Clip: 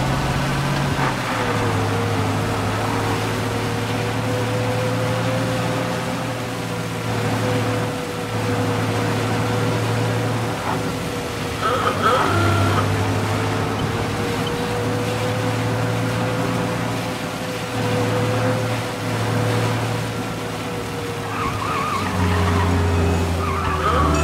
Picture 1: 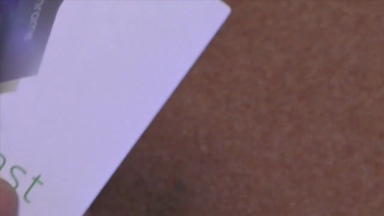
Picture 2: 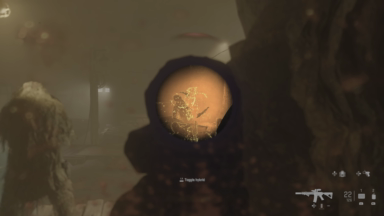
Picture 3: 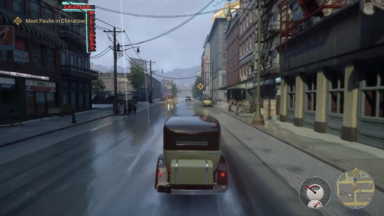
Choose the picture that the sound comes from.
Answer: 3